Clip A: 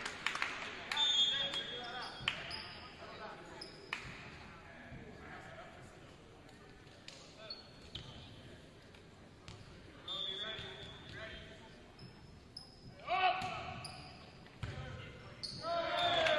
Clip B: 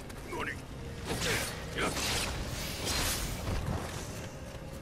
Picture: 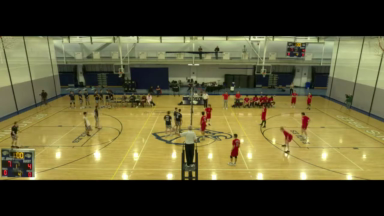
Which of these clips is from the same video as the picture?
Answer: A